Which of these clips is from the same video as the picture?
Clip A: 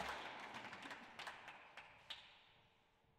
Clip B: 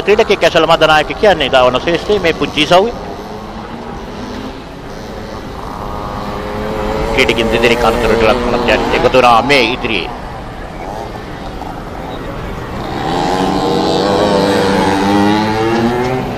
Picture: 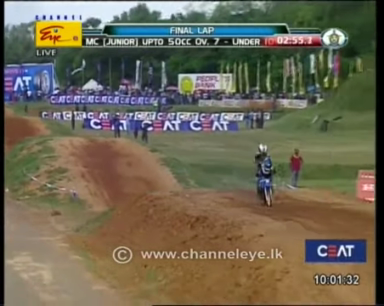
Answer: B